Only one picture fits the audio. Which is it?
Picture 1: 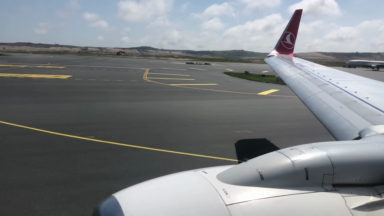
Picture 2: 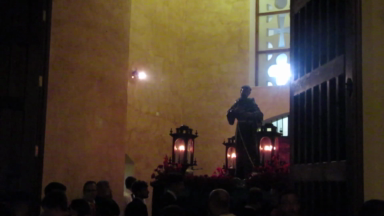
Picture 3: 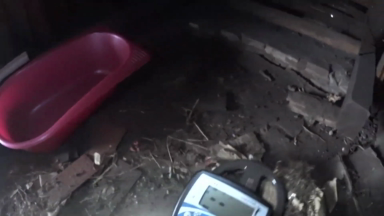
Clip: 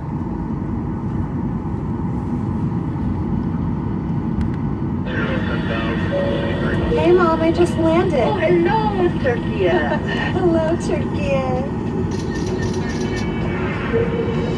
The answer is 1